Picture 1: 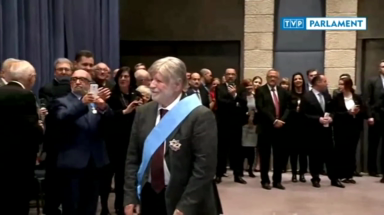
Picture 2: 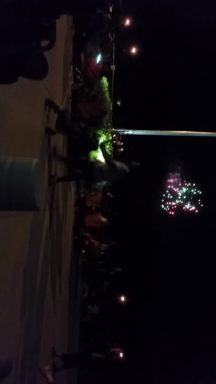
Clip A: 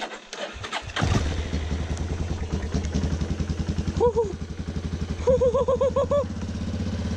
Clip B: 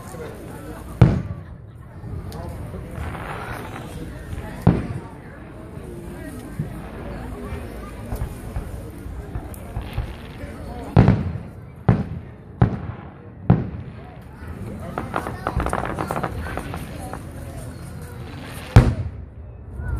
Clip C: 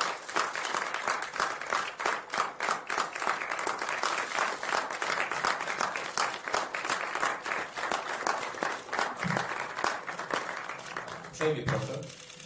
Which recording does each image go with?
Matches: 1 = C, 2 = B